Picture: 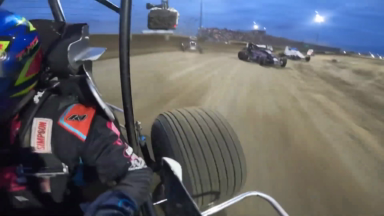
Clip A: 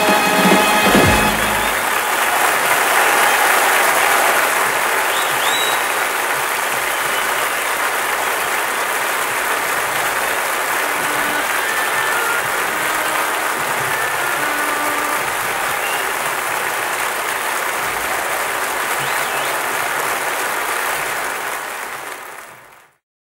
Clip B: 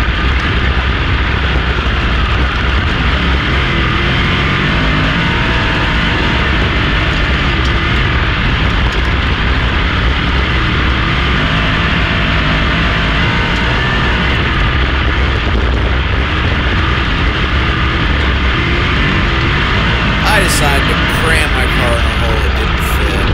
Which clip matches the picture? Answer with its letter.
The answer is B